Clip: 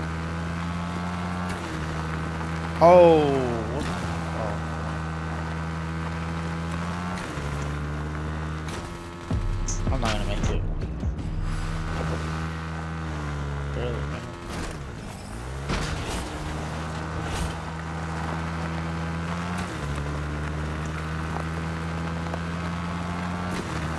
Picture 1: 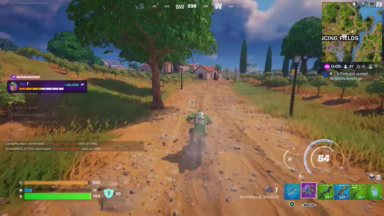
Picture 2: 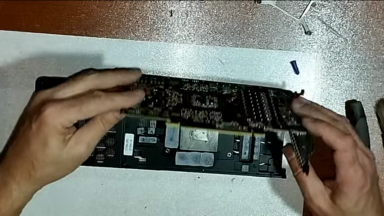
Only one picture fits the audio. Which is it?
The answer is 1